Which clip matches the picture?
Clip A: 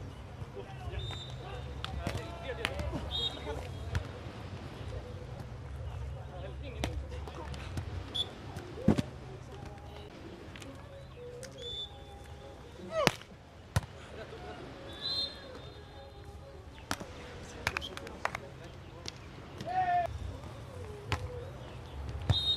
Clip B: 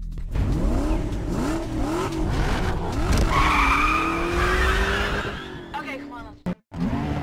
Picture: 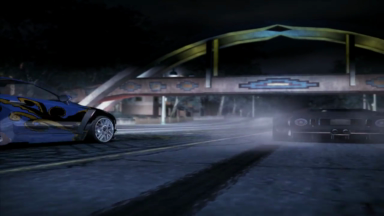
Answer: B